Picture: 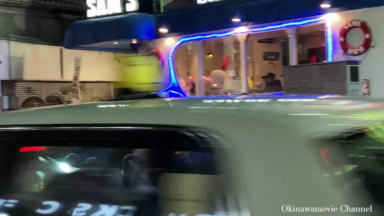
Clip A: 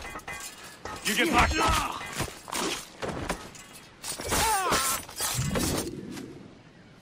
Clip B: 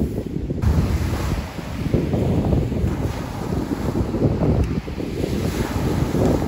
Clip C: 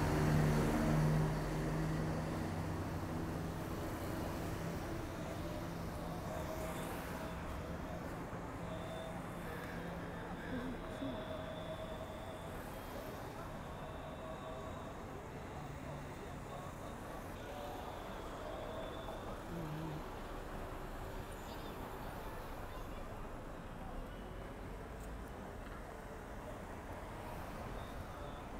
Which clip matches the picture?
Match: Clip C